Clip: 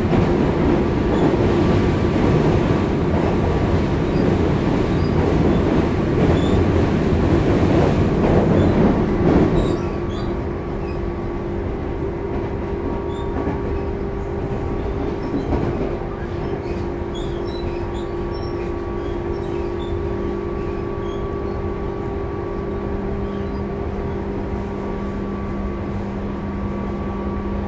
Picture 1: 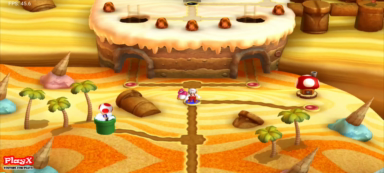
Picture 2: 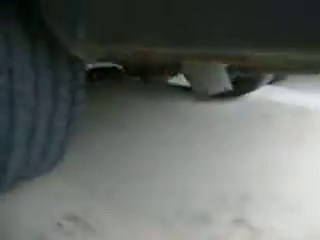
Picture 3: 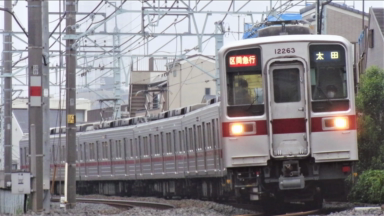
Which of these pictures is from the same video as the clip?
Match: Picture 3